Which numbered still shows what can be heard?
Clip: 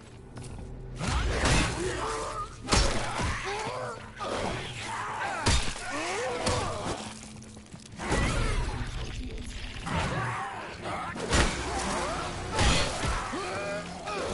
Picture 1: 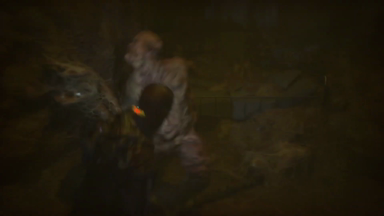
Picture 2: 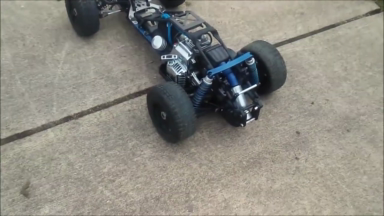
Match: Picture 1